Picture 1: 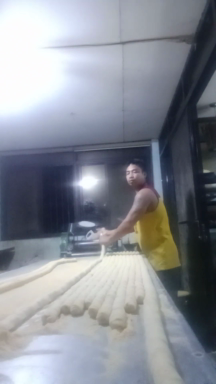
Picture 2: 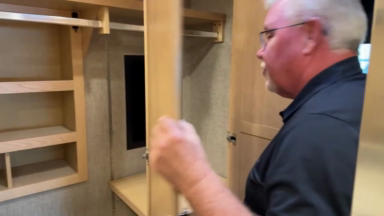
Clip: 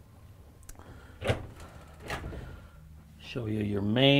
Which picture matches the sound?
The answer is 2